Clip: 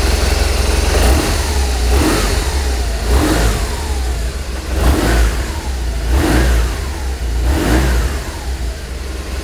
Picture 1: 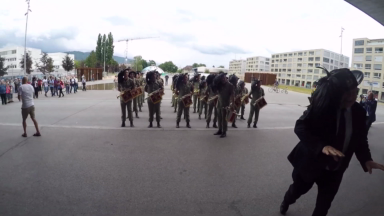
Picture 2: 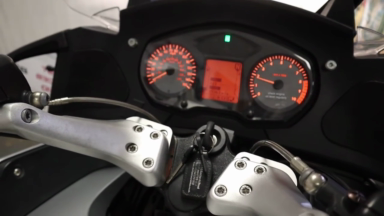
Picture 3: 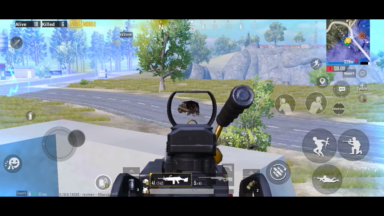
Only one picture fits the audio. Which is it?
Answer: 2